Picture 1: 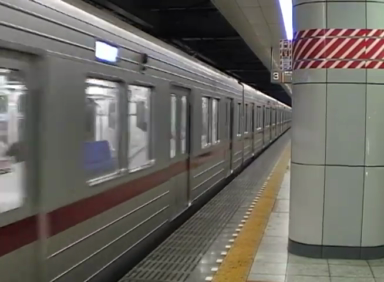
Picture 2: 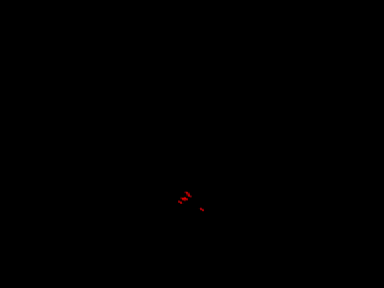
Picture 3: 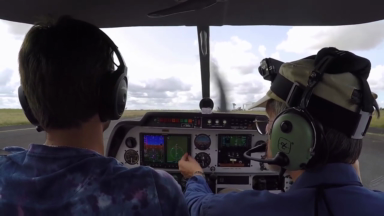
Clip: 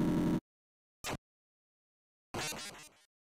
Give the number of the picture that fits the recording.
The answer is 2